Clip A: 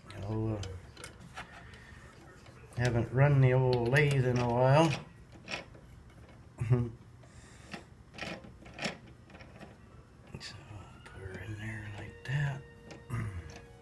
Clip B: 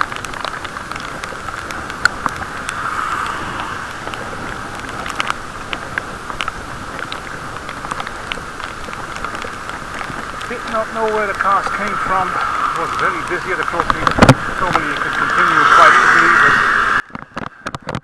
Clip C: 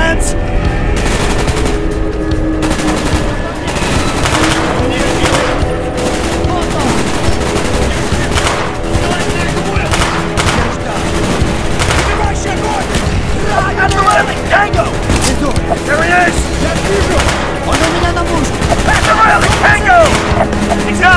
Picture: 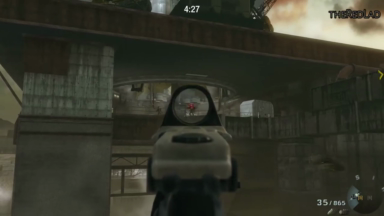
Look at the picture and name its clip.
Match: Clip C